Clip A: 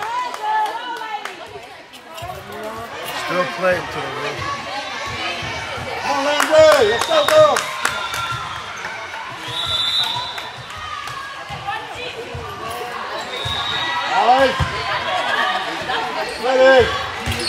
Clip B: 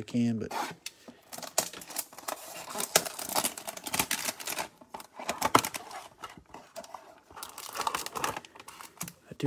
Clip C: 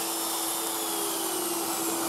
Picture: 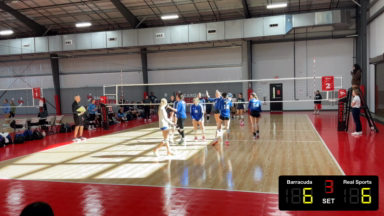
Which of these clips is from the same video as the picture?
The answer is A